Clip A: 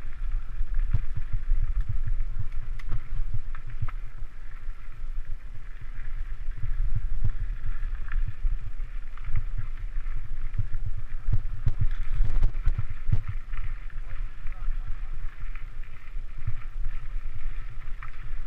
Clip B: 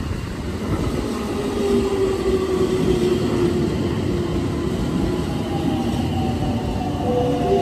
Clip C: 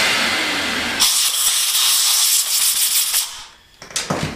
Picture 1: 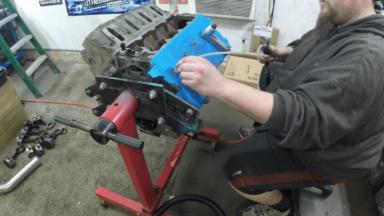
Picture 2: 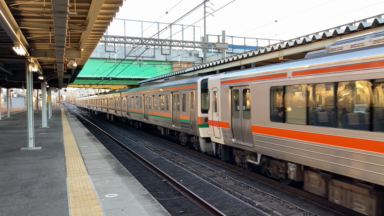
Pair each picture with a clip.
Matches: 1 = C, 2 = B